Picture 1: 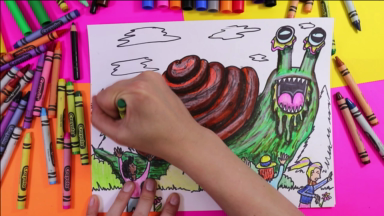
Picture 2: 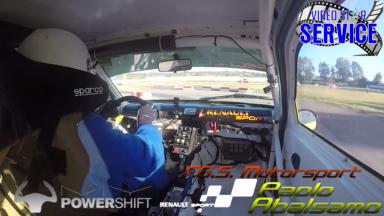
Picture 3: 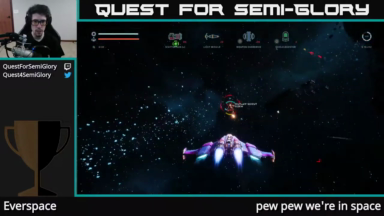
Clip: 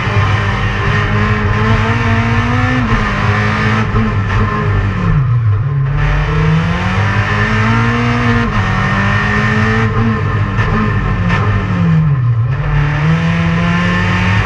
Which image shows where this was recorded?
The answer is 2